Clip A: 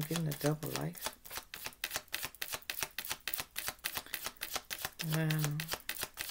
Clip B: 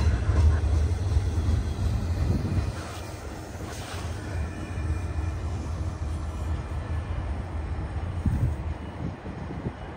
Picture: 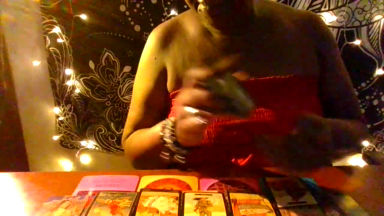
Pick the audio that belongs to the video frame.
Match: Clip A